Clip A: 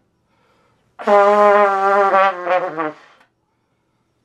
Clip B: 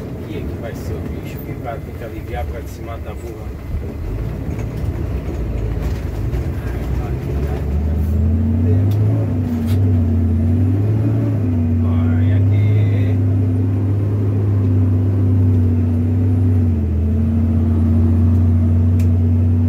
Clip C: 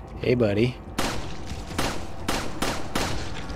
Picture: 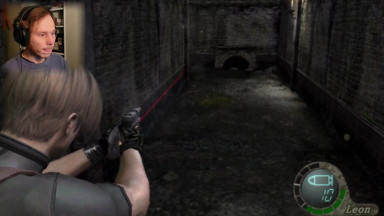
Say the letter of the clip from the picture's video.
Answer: C